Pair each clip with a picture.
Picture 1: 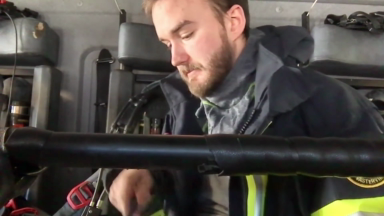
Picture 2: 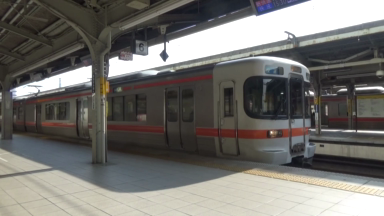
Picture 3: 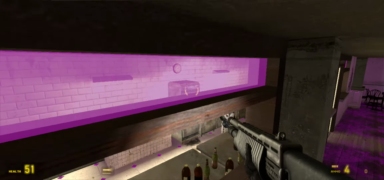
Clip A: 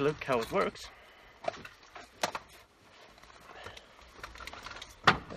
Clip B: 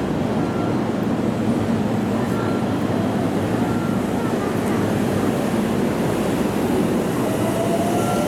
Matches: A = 1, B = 2